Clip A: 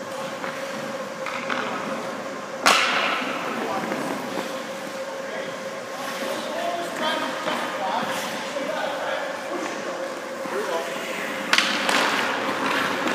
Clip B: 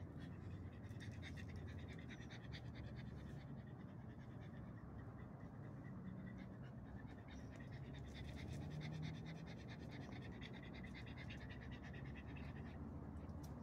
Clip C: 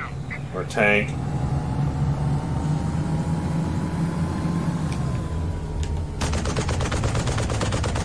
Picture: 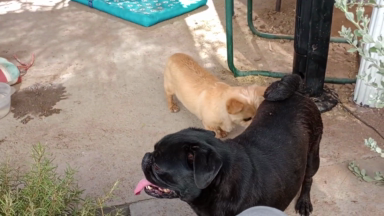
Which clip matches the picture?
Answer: B